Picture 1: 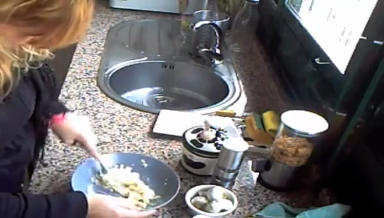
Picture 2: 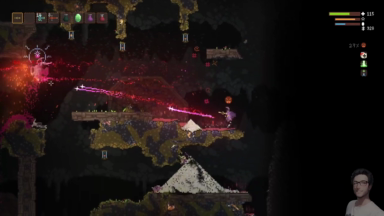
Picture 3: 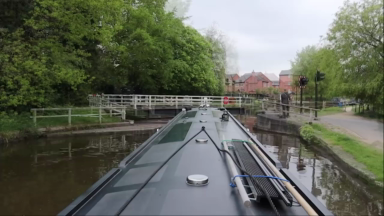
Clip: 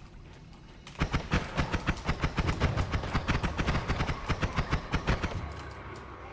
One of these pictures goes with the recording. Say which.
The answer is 2